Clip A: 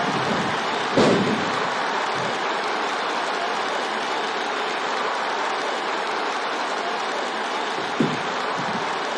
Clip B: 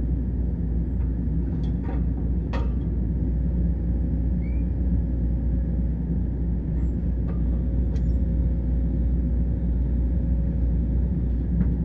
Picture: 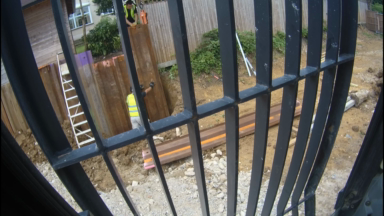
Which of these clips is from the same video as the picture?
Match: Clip B